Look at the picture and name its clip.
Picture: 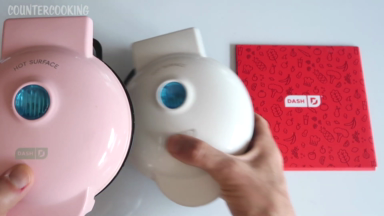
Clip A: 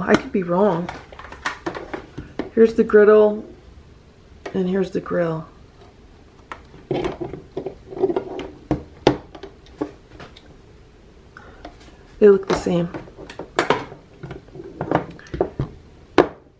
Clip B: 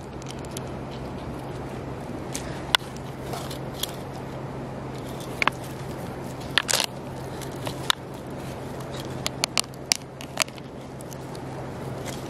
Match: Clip A